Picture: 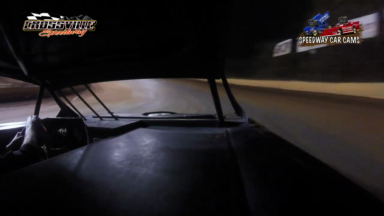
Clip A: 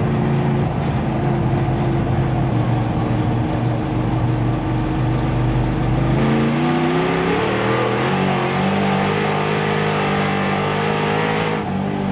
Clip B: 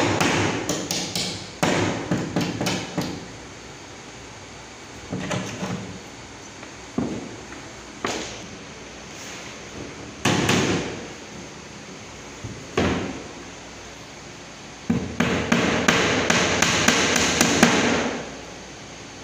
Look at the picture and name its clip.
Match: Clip A